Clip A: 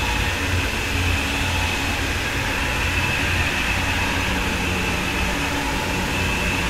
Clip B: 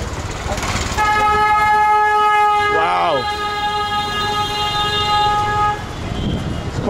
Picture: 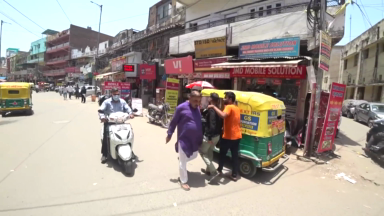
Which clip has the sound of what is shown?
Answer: B